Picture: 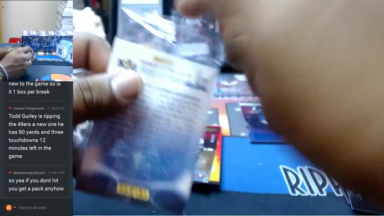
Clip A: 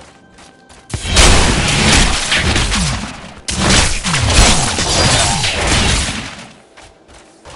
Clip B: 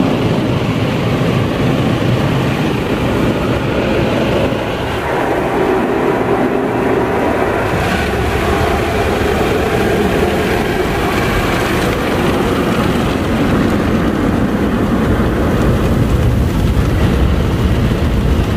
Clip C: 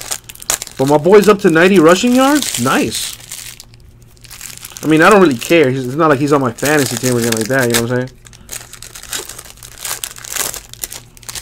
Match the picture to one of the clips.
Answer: C